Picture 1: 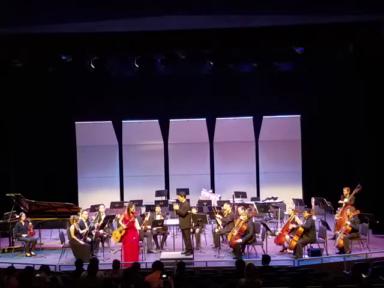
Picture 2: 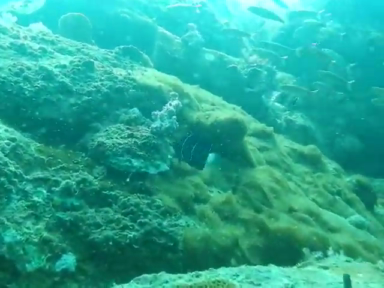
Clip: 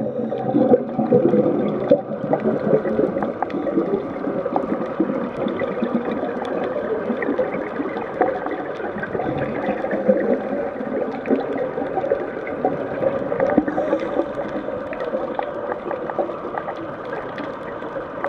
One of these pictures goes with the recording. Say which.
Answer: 2